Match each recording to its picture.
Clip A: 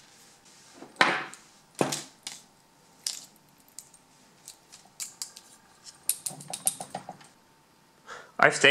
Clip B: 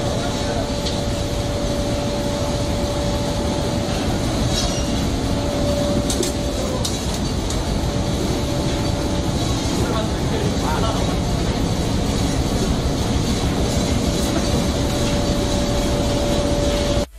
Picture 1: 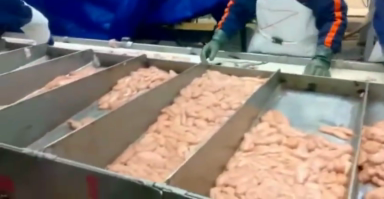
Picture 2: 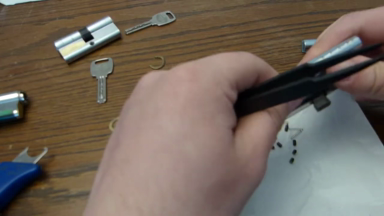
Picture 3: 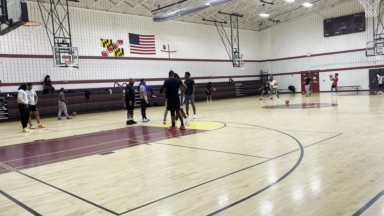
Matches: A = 2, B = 1